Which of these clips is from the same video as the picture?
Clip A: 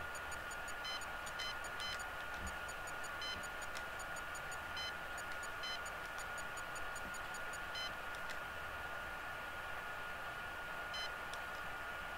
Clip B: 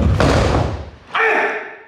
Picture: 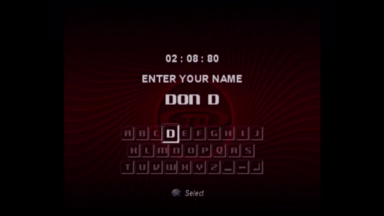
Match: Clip A